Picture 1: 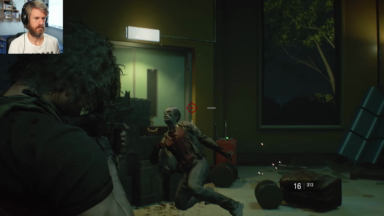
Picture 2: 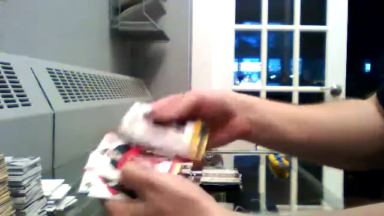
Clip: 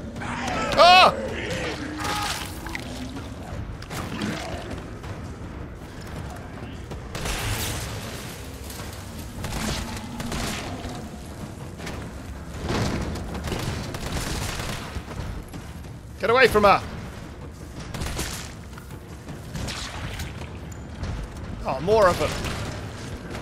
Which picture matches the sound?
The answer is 1